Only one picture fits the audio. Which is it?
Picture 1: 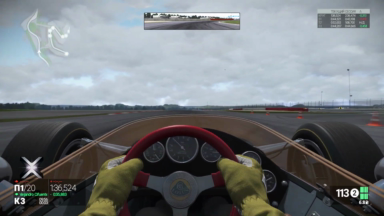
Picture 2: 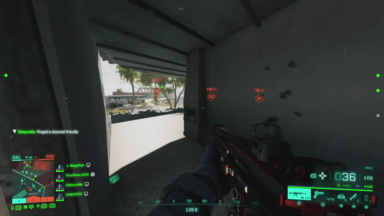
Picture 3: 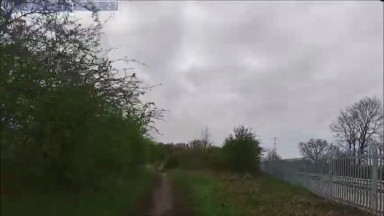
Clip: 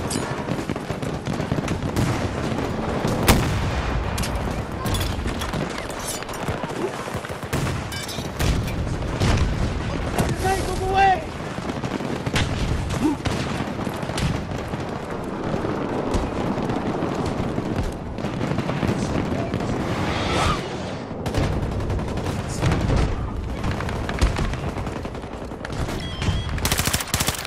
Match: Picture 2